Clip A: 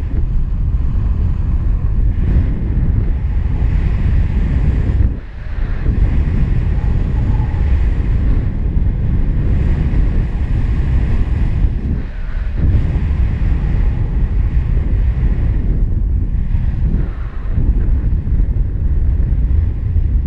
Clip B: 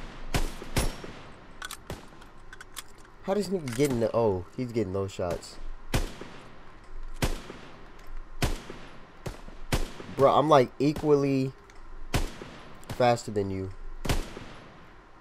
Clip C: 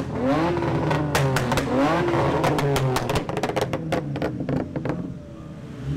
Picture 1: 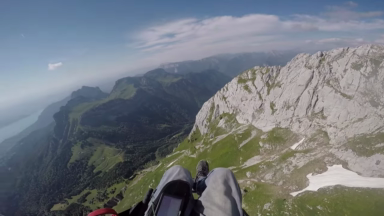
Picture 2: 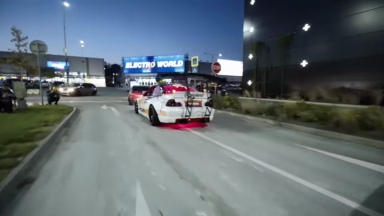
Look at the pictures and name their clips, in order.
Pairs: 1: A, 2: C